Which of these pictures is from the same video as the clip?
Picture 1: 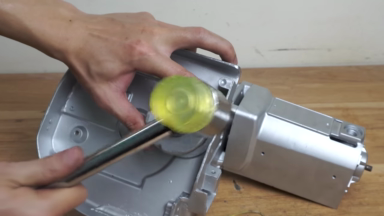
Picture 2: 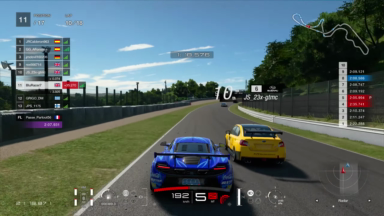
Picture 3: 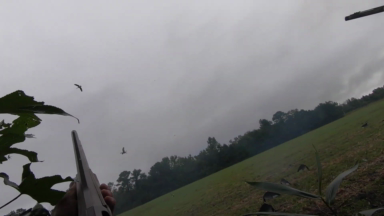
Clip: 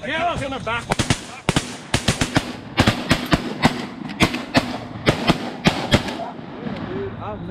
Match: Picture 3